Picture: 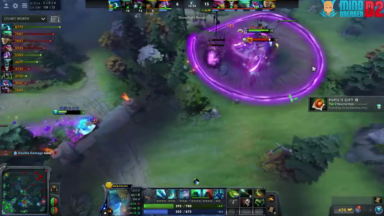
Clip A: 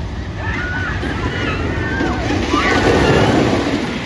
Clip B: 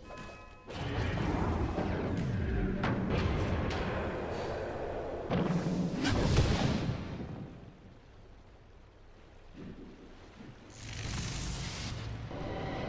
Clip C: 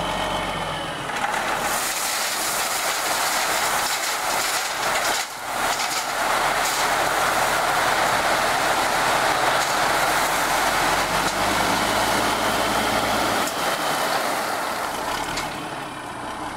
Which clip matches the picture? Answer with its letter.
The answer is B